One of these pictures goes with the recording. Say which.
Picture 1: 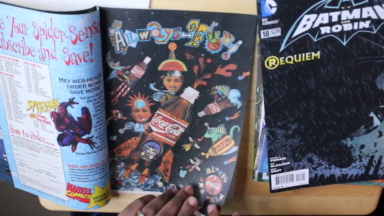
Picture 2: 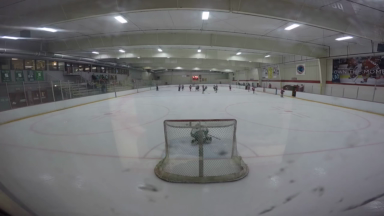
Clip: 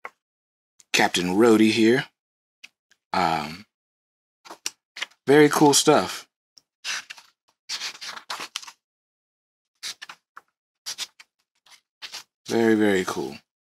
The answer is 1